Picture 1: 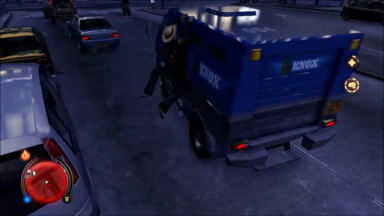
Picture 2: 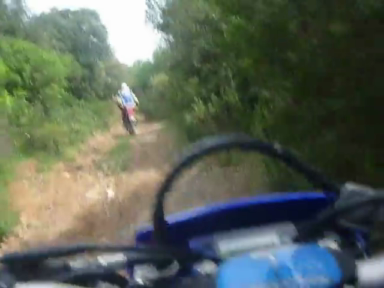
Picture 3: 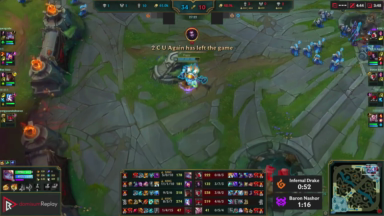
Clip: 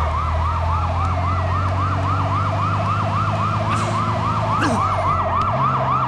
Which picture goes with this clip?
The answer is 1